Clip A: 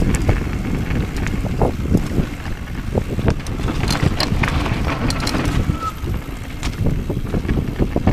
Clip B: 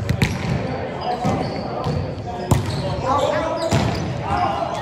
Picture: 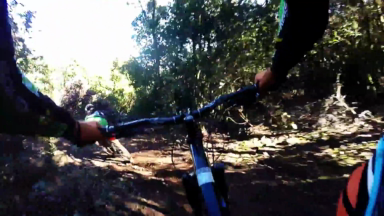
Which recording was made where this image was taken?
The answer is A